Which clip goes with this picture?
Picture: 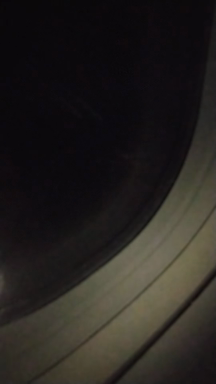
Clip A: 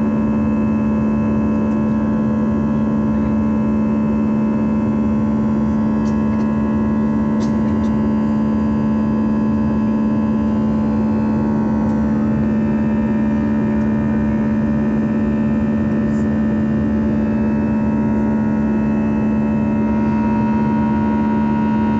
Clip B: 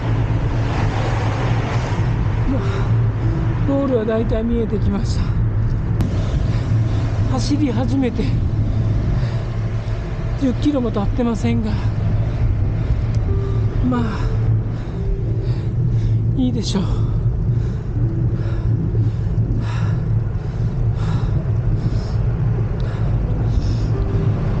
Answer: A